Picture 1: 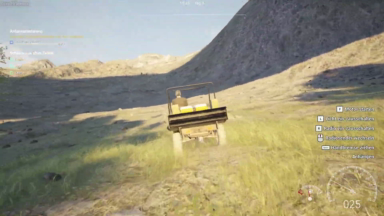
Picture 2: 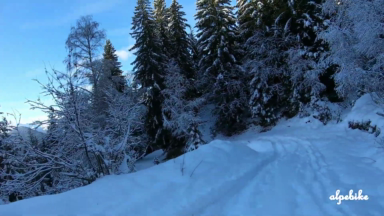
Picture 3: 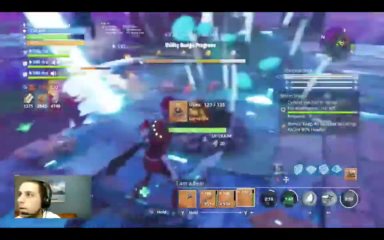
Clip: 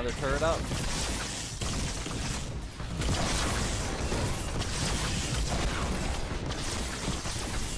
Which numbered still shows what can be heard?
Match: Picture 3